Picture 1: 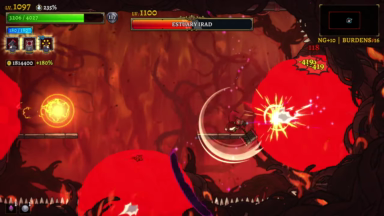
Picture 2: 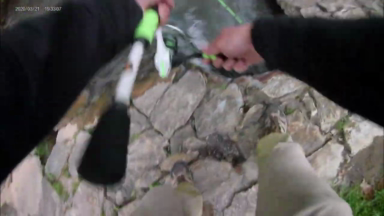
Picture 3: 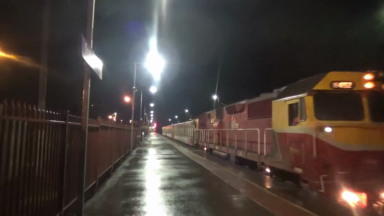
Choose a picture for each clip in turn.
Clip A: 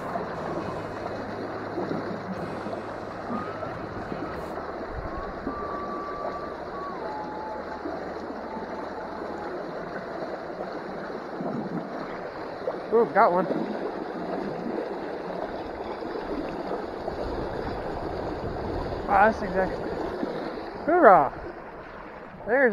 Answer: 2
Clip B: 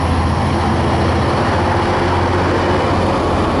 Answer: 3